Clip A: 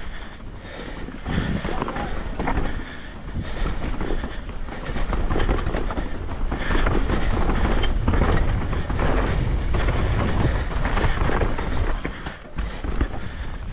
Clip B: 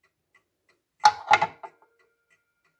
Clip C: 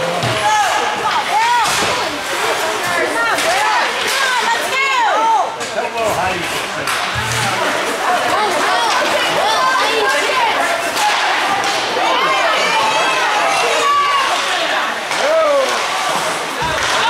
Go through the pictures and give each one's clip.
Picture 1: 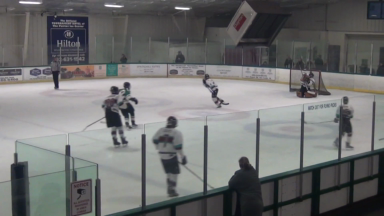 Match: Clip C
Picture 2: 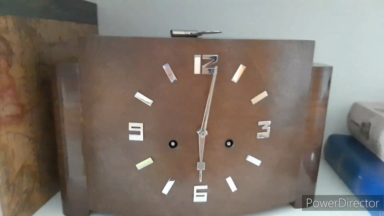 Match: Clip B